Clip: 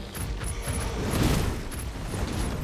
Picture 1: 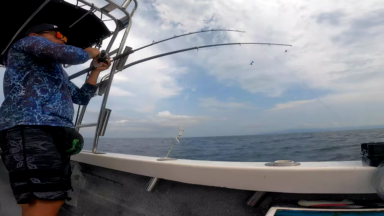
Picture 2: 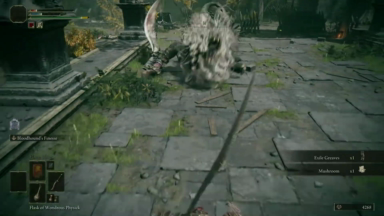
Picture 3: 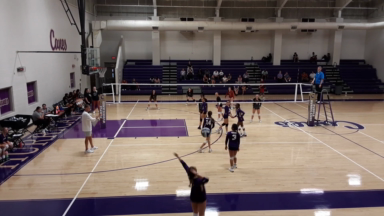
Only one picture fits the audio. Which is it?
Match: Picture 2